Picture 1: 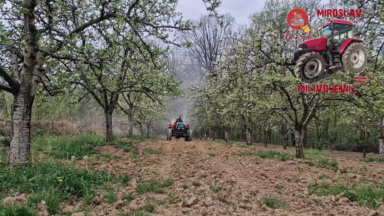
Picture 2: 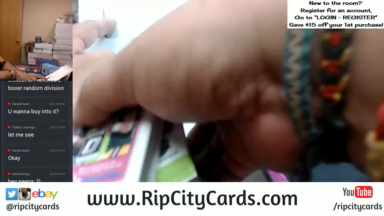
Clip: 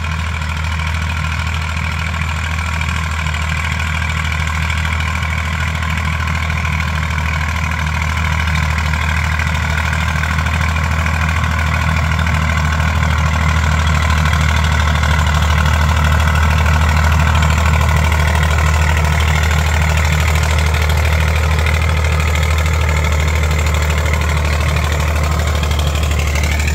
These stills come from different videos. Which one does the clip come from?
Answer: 1